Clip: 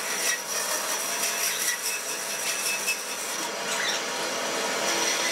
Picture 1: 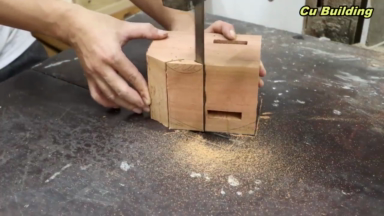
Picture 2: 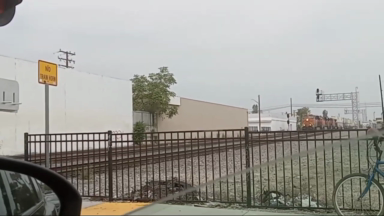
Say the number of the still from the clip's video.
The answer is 1